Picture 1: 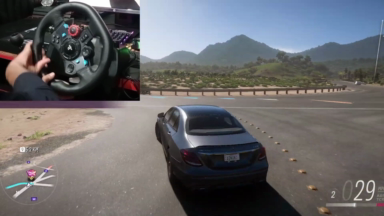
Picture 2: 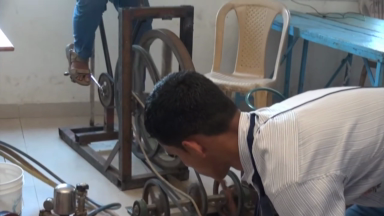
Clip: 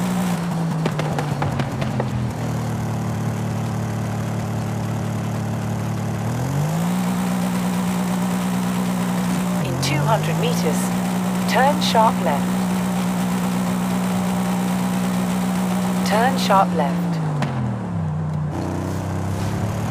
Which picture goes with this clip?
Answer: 1